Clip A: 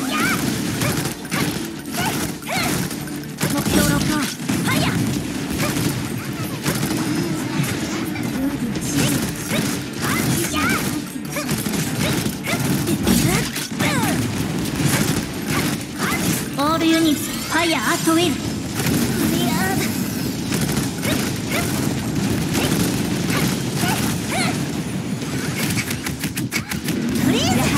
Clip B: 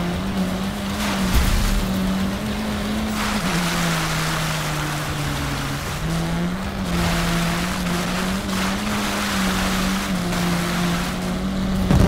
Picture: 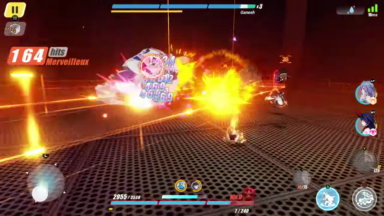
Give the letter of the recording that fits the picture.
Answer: A